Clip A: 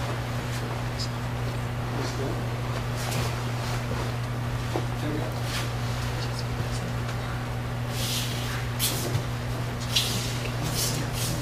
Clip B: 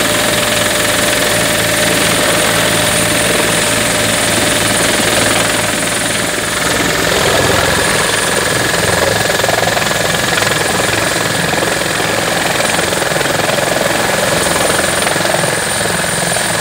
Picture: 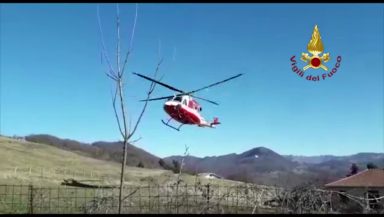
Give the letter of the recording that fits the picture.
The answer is B